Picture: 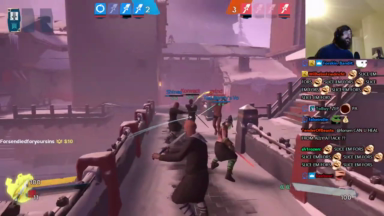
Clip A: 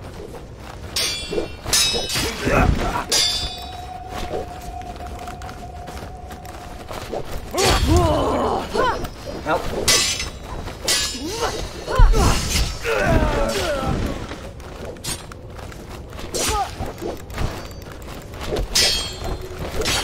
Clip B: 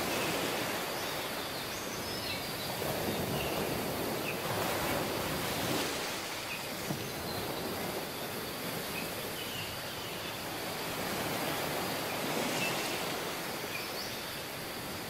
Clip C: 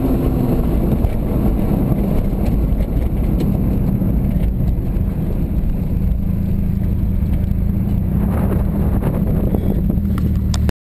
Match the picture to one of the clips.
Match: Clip A